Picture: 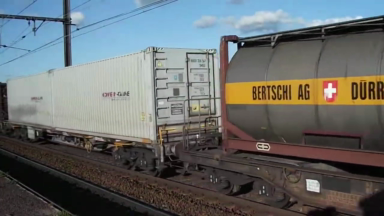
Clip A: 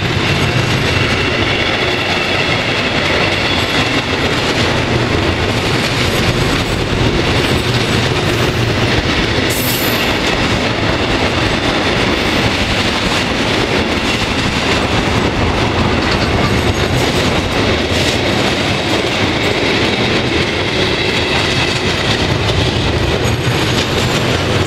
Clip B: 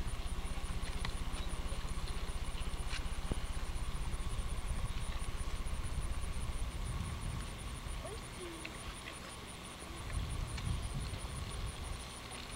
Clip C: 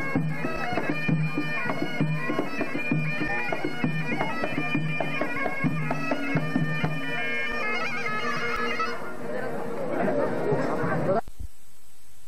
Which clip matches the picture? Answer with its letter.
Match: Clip A